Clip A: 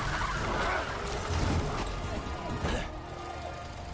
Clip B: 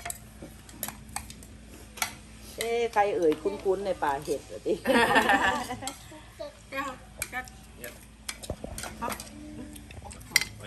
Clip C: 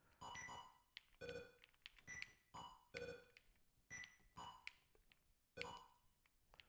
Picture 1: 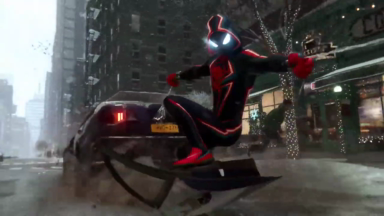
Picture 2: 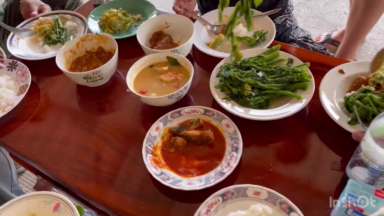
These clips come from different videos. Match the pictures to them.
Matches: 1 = A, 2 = B